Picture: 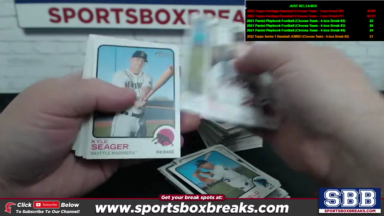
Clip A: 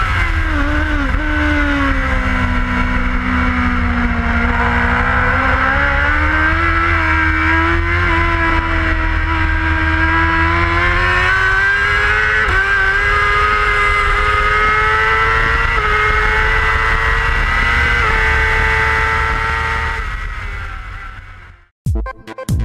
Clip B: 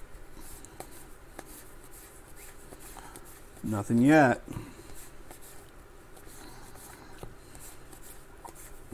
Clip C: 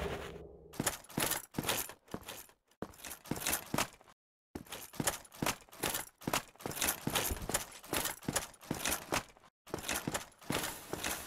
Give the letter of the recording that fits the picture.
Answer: B